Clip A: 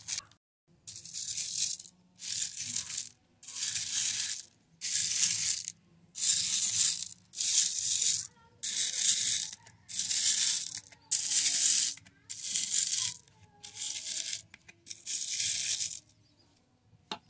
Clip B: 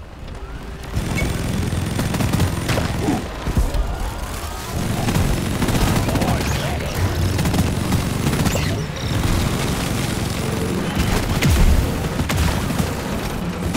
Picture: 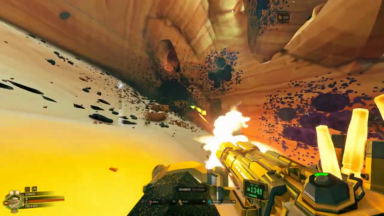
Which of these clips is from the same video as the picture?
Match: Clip B